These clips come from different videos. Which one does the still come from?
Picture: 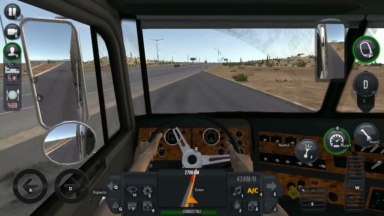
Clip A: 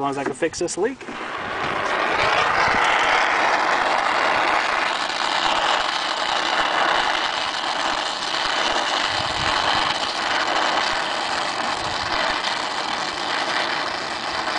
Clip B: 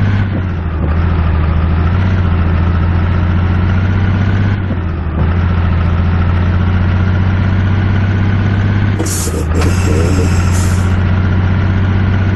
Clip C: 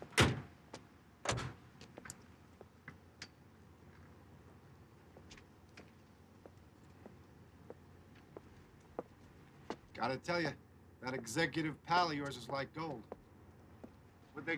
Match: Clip B